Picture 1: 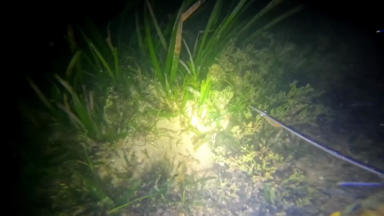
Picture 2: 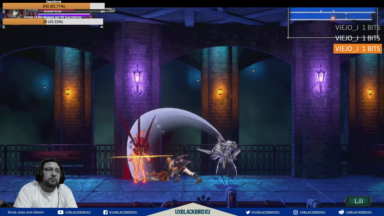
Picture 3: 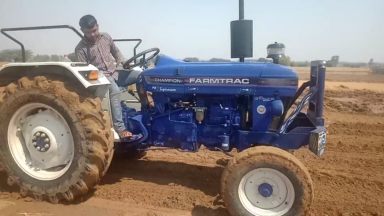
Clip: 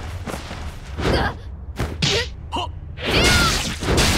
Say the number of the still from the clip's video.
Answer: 2